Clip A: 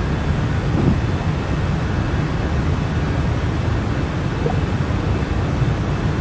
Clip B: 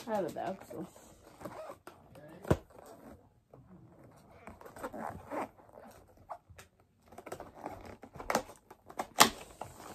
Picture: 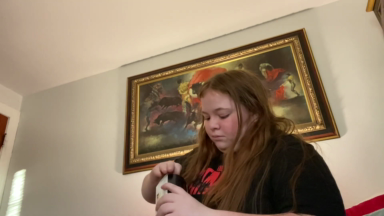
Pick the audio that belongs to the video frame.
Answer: B